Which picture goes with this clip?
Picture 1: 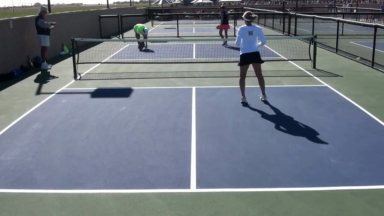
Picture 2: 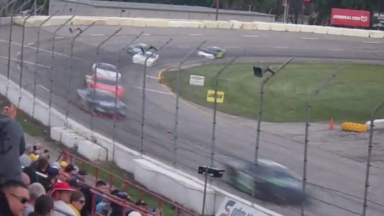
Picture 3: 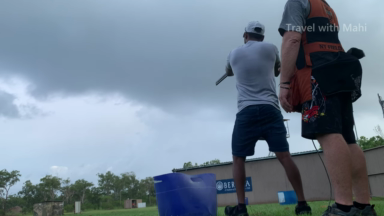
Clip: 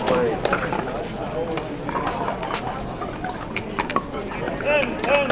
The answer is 1